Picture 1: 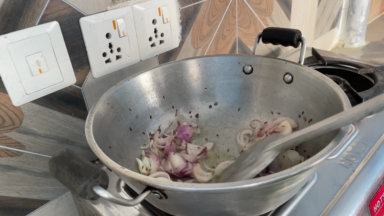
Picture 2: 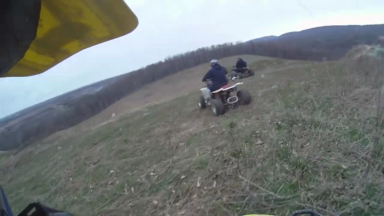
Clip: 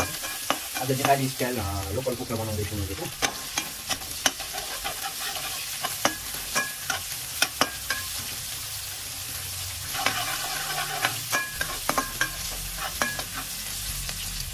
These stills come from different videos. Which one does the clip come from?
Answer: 1